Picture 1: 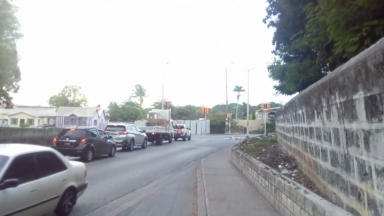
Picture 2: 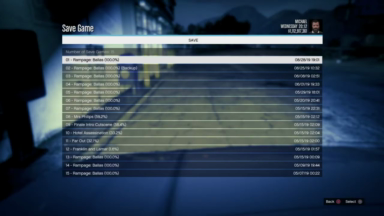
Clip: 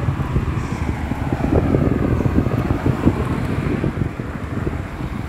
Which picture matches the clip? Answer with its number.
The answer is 1